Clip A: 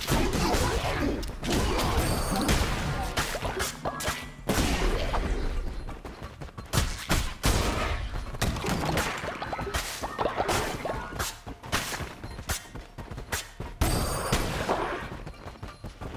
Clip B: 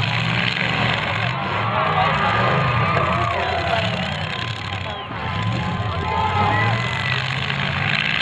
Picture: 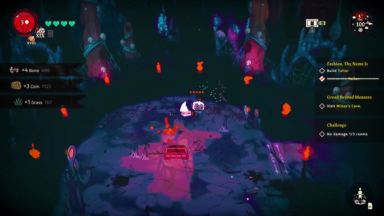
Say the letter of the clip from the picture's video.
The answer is A